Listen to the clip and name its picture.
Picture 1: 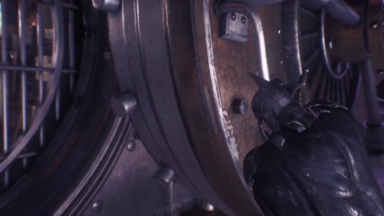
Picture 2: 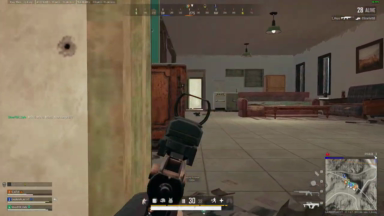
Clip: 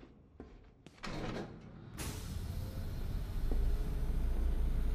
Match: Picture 1